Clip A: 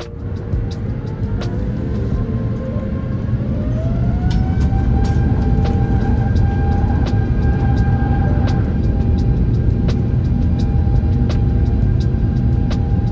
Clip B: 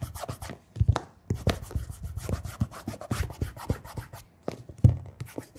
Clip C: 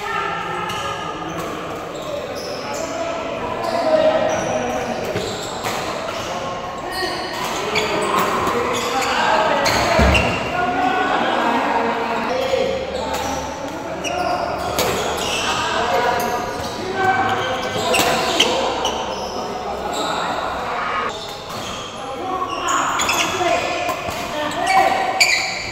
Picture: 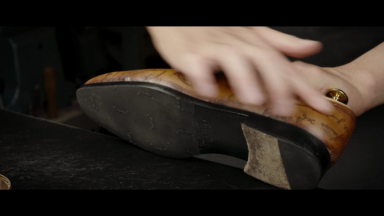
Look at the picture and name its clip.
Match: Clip B